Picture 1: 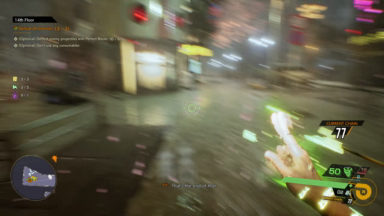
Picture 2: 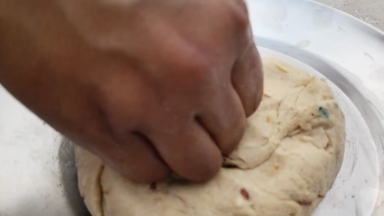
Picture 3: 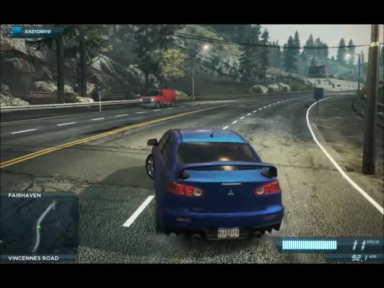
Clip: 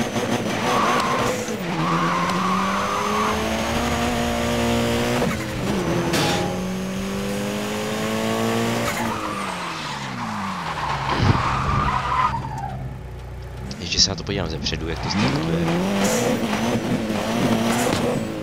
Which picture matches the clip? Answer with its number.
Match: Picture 3